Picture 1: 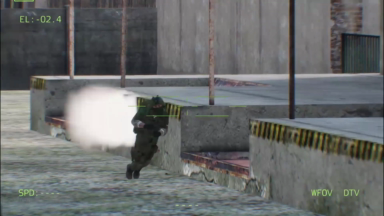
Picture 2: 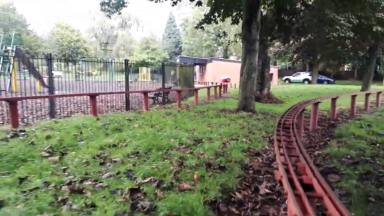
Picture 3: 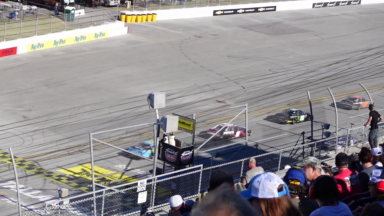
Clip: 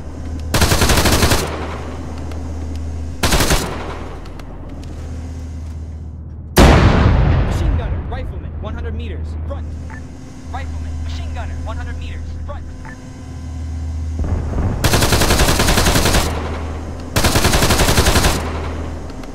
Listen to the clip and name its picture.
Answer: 1